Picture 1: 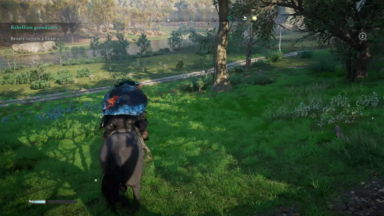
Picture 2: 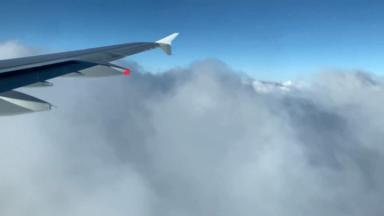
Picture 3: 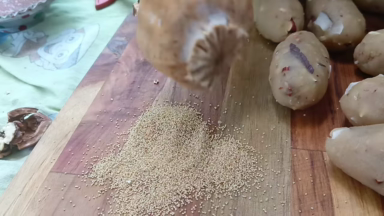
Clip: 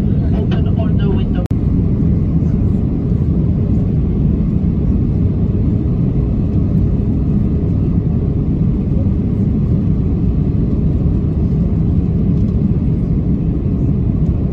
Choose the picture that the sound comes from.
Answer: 2